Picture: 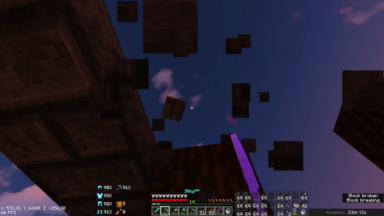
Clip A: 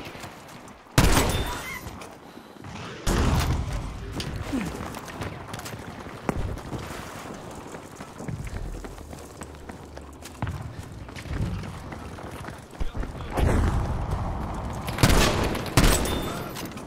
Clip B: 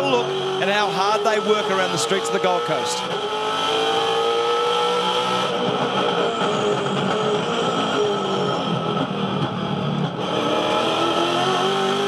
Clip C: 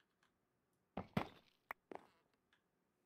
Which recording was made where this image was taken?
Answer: C